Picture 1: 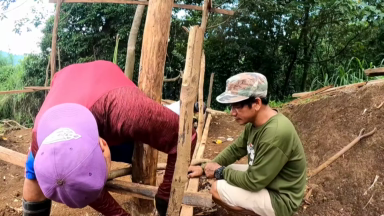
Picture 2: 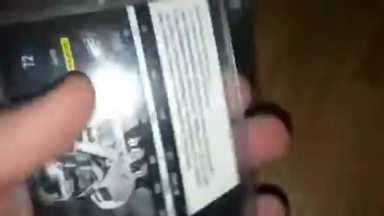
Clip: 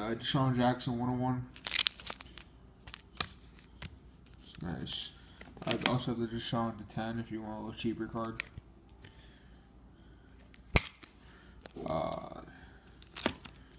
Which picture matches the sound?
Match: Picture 2